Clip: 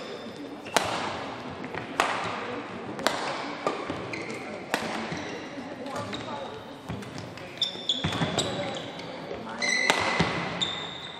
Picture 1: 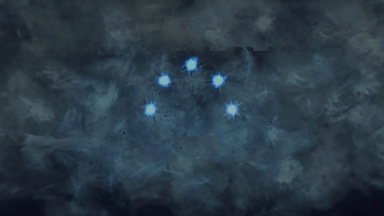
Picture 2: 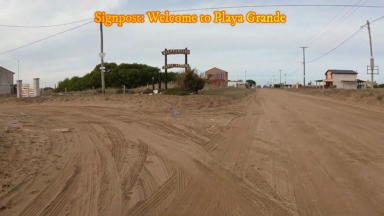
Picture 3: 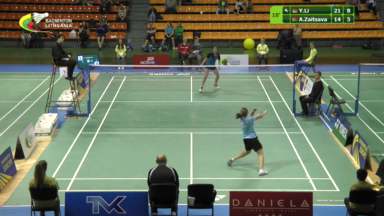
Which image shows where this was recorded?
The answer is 3